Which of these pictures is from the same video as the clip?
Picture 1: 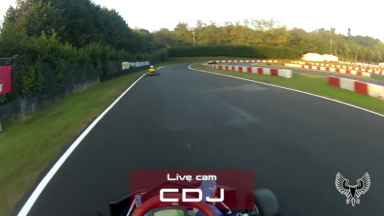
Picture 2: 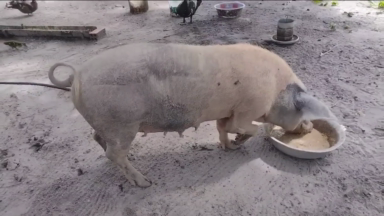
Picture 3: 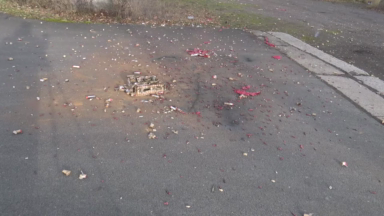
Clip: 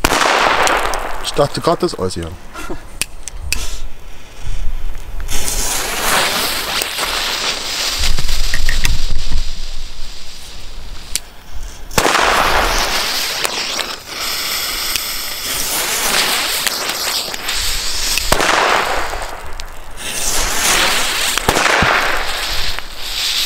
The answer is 3